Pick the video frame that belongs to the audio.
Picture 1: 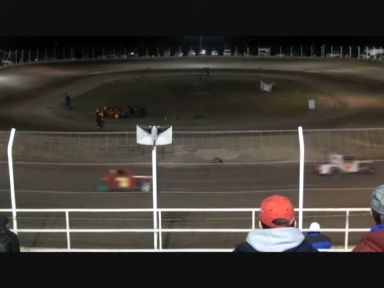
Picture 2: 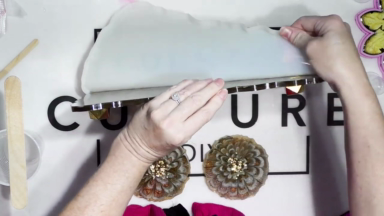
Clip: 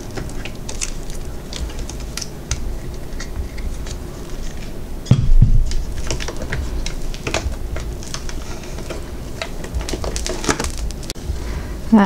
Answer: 2